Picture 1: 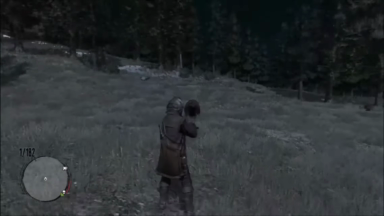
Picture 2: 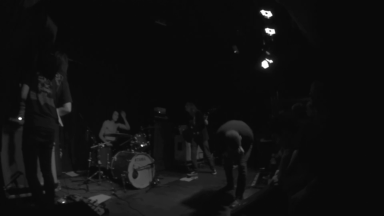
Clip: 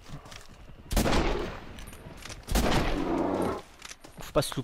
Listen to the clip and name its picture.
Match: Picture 1